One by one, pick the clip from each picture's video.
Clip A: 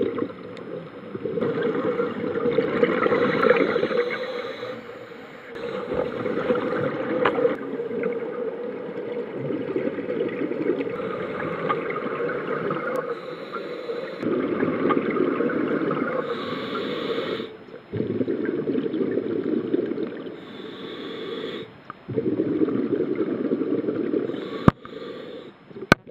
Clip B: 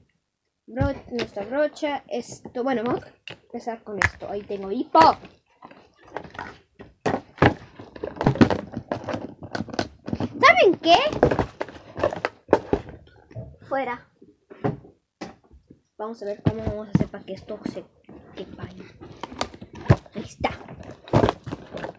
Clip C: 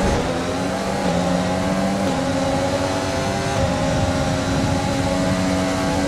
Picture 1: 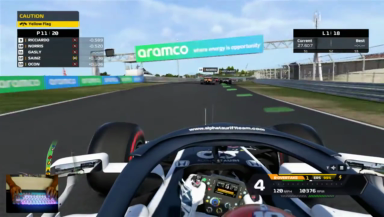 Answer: C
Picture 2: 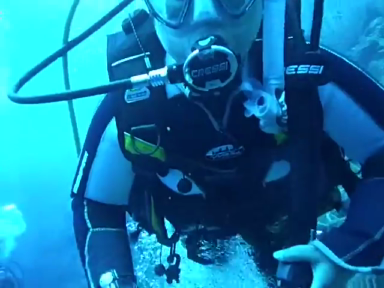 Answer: A